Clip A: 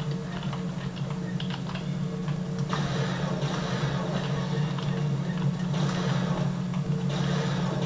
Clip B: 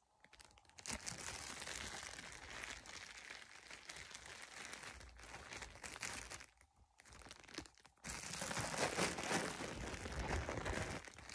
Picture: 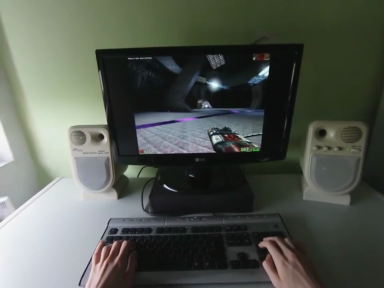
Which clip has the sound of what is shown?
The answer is A